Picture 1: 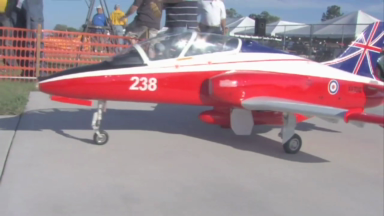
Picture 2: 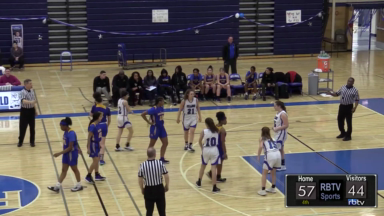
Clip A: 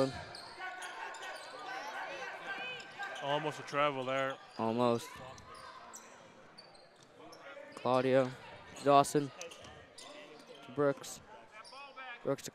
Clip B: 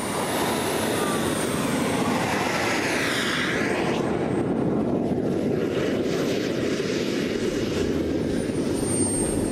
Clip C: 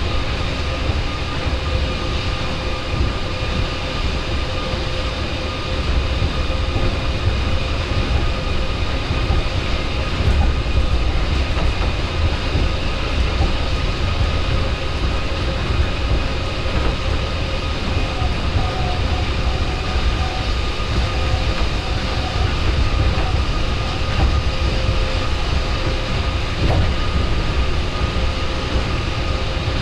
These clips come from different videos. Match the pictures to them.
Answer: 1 B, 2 A